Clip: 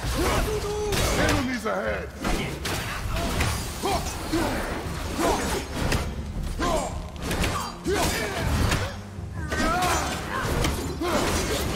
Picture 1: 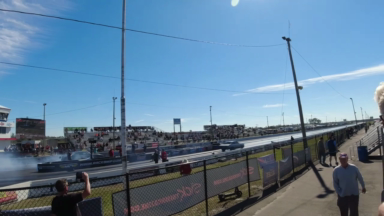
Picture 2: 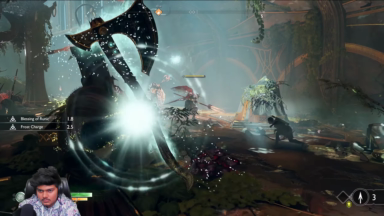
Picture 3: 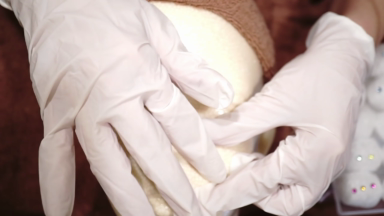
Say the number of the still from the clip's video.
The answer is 2